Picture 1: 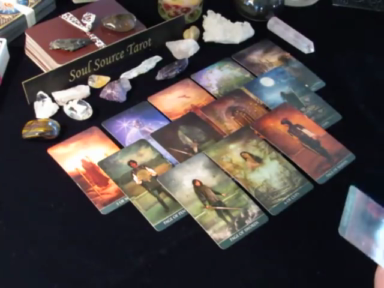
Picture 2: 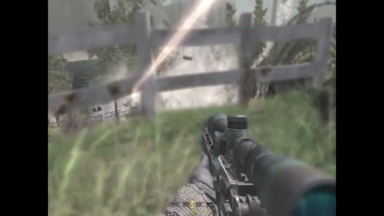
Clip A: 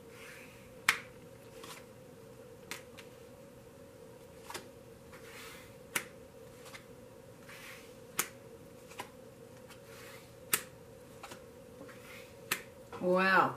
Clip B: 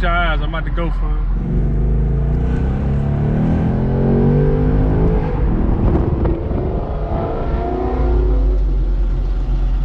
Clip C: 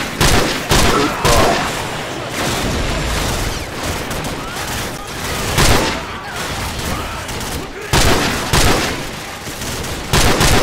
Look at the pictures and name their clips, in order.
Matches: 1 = A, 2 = C